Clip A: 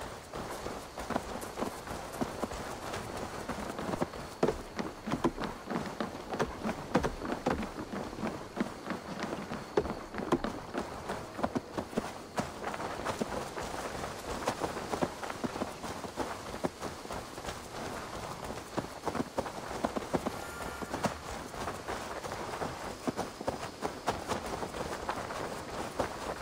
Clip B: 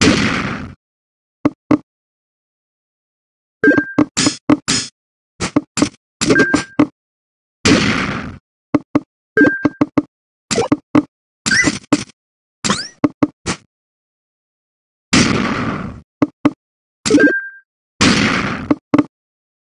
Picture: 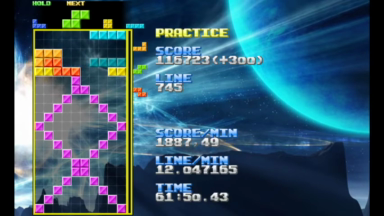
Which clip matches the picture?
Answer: B